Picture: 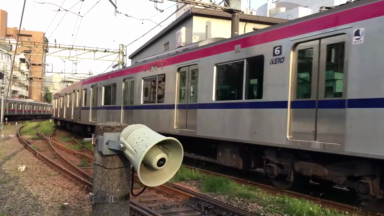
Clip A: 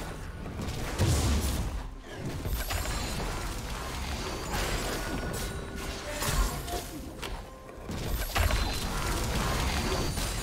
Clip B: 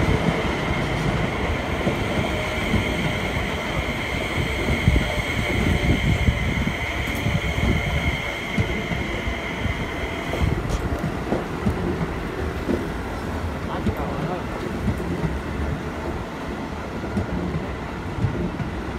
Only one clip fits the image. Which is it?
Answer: B